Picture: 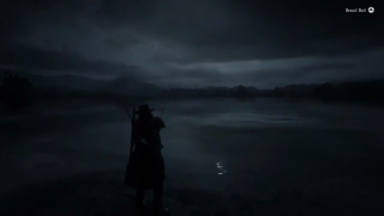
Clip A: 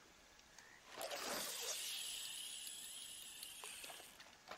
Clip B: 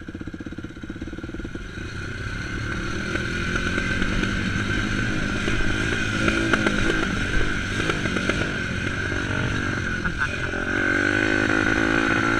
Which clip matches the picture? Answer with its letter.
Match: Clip A